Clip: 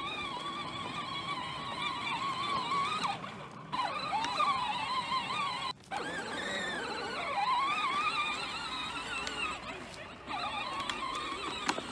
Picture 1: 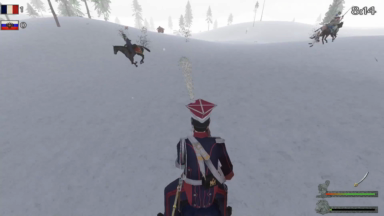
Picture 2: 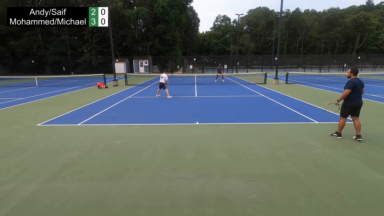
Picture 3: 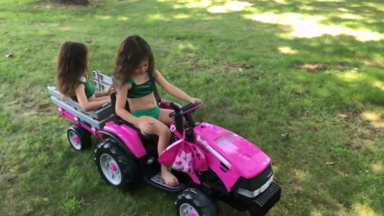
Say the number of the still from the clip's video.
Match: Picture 3